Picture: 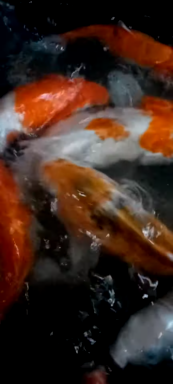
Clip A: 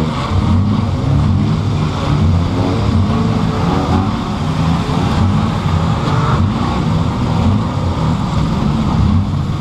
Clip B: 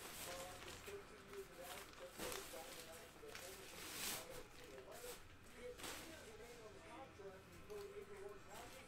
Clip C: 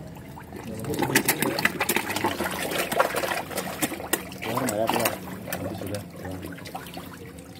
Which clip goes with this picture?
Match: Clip C